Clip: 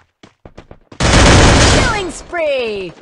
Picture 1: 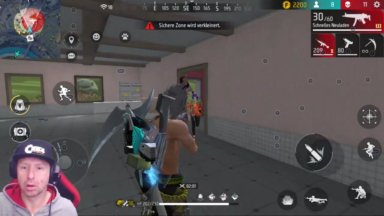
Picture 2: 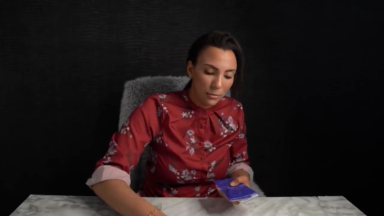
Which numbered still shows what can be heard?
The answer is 1